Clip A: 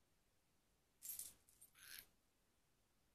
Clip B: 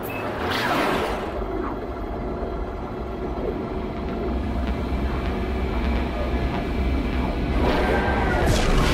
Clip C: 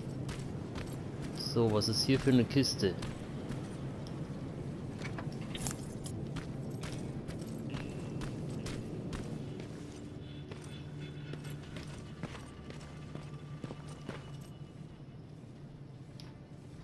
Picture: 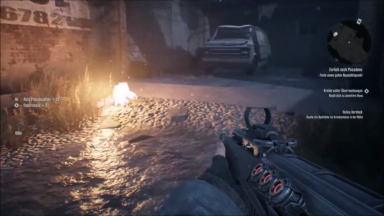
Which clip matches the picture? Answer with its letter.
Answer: C